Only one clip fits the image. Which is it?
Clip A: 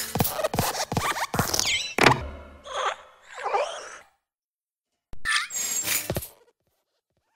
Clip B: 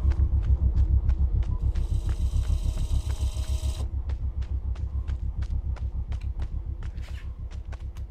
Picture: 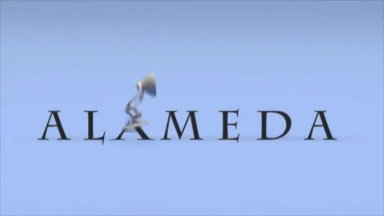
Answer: A